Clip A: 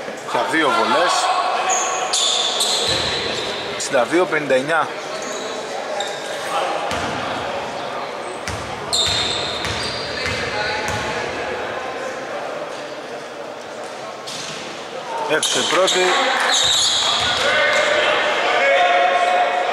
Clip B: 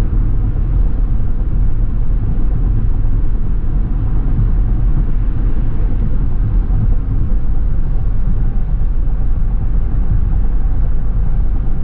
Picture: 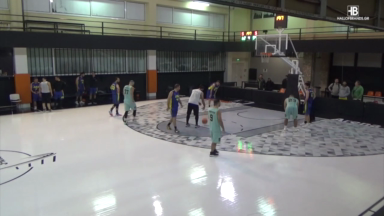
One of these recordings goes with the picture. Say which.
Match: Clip A